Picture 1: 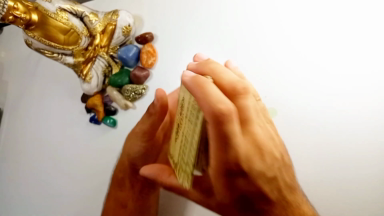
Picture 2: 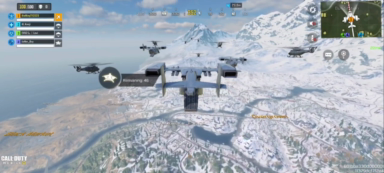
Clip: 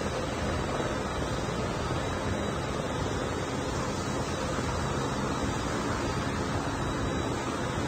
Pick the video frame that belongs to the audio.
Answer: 2